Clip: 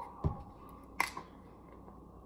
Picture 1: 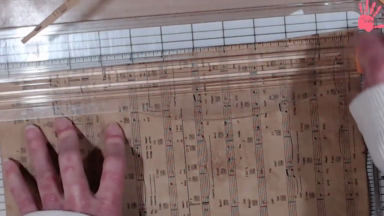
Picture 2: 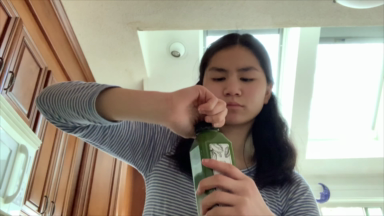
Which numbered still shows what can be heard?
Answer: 2